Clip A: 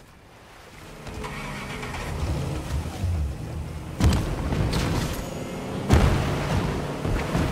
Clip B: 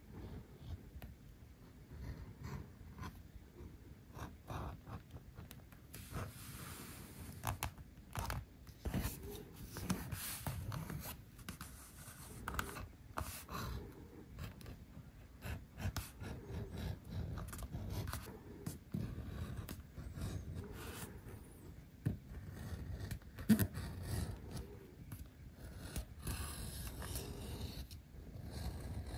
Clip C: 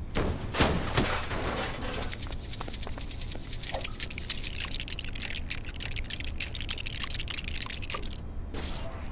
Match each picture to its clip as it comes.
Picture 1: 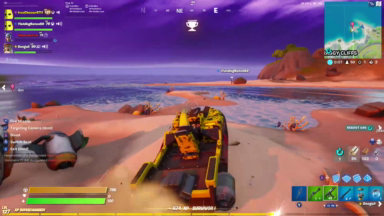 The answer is A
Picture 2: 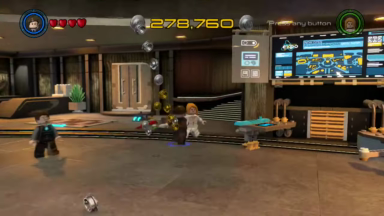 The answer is C